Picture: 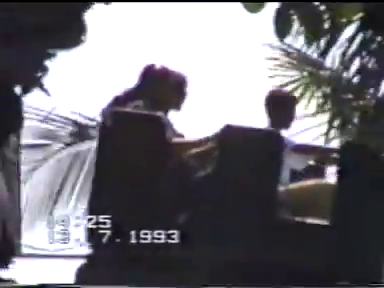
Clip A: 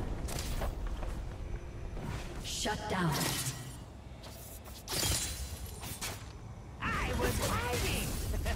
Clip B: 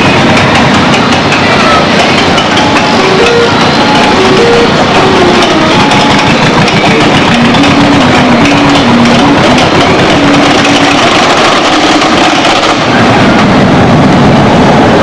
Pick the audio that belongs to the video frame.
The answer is B